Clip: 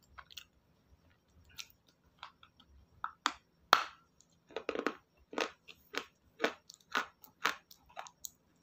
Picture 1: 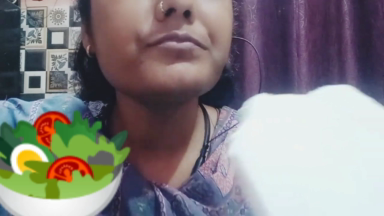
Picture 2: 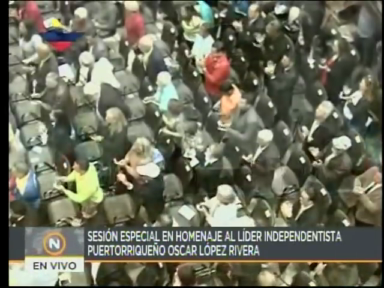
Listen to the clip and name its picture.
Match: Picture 1